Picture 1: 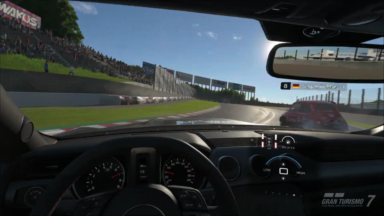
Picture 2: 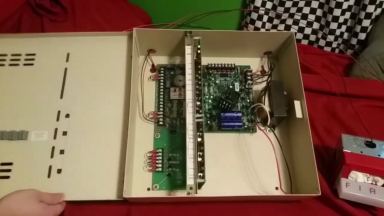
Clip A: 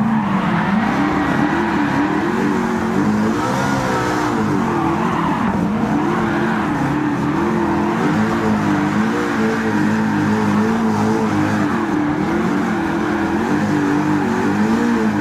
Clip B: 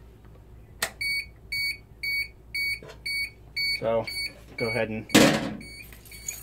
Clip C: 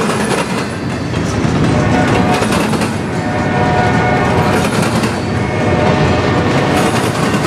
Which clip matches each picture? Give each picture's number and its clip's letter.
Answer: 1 A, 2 B